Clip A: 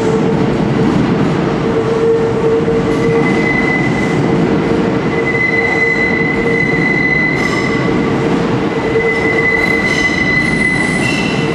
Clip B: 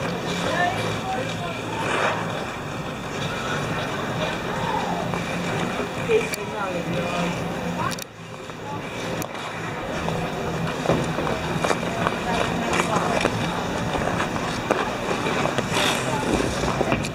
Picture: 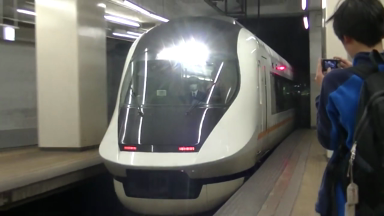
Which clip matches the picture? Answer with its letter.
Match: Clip A